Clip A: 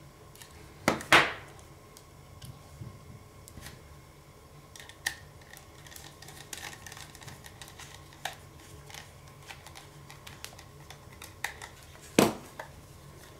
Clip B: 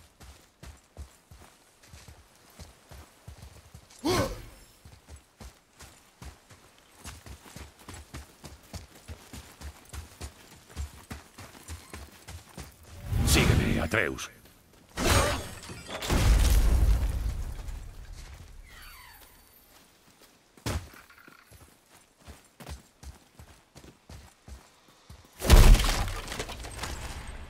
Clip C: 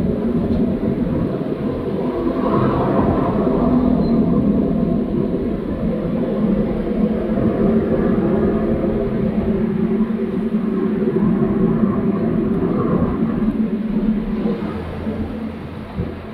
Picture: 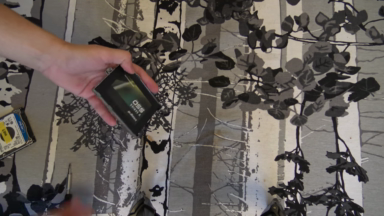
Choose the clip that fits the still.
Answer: A